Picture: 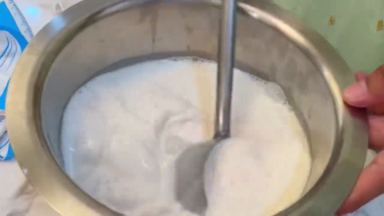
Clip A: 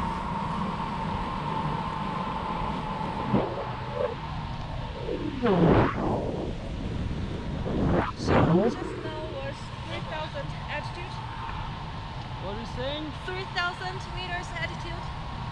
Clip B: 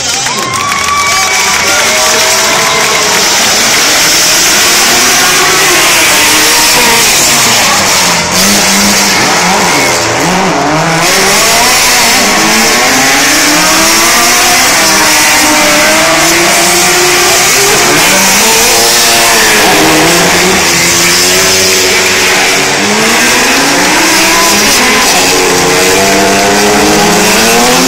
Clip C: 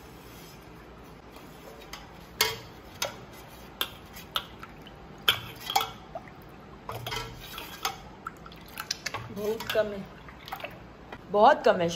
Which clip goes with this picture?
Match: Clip C